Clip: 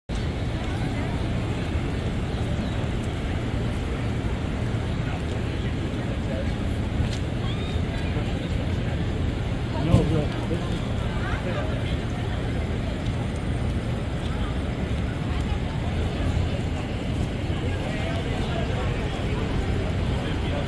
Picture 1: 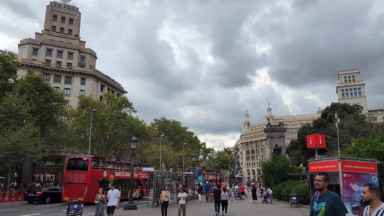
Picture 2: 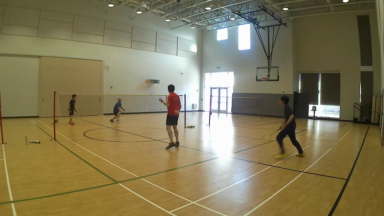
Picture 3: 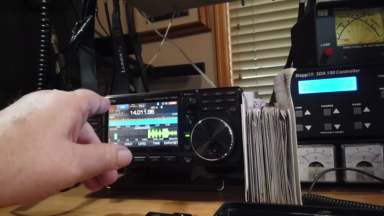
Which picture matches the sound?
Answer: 1